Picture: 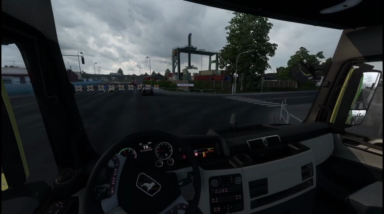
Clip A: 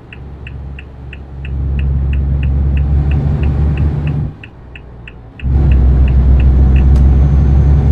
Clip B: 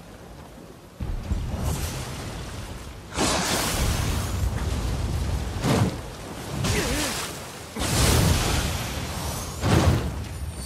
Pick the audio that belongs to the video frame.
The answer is A